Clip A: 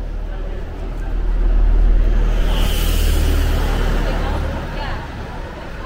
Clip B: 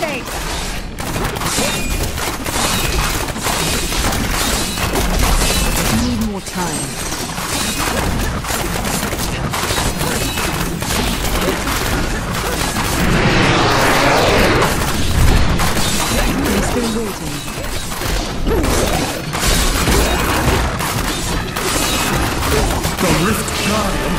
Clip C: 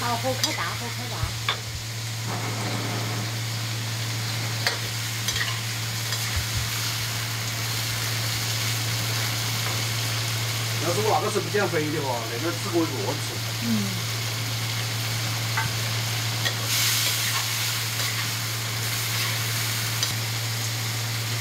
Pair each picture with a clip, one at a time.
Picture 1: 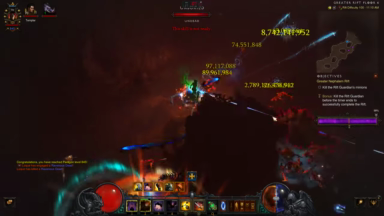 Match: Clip B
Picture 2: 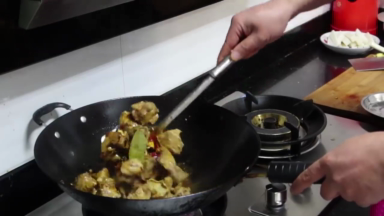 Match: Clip C